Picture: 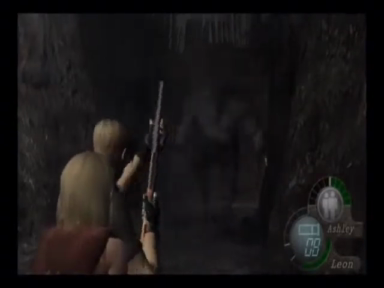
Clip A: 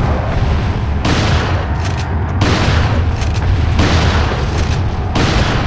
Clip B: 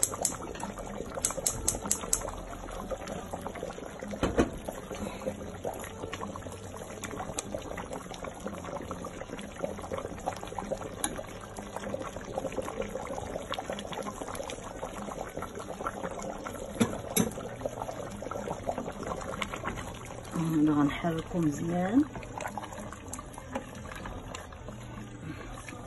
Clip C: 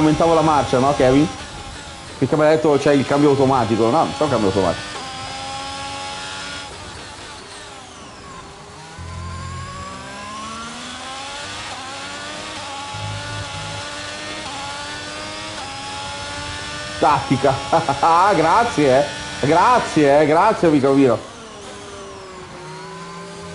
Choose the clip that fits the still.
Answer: A